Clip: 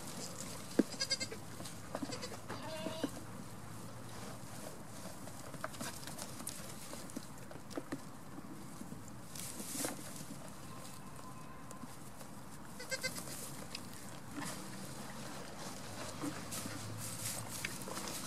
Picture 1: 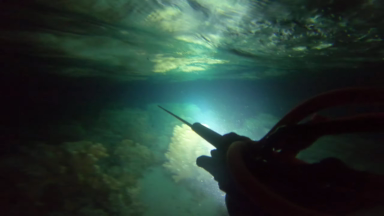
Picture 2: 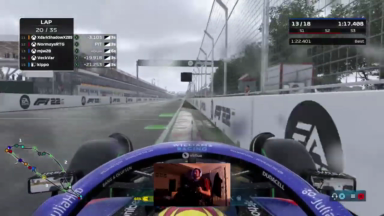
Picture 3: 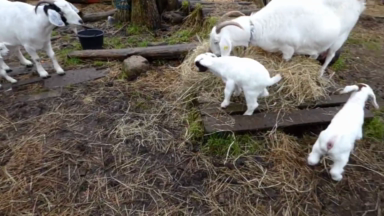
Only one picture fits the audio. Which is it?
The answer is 3